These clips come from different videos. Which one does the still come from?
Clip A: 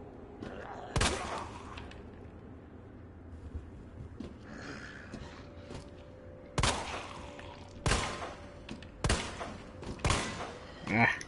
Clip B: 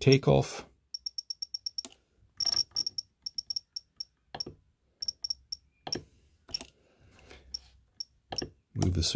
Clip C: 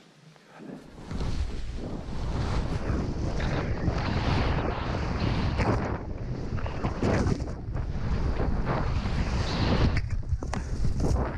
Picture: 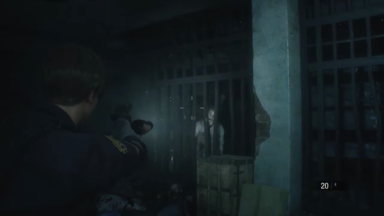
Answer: A